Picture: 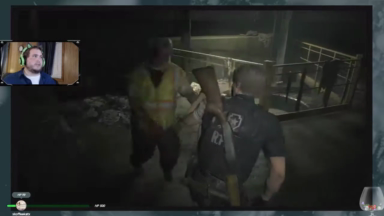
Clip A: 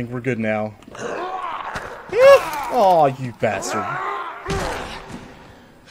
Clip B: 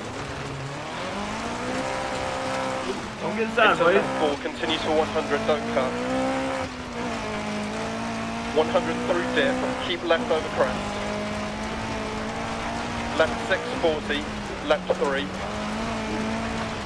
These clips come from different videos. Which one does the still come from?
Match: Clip A